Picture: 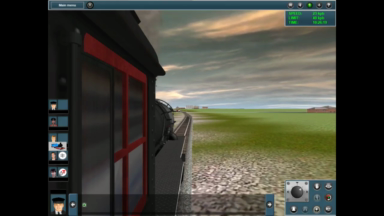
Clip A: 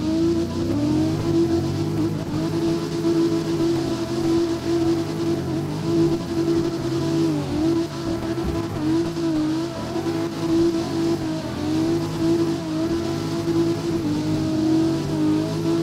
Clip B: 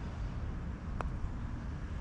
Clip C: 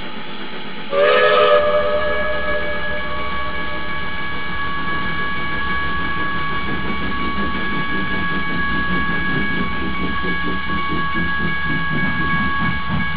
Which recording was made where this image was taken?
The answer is C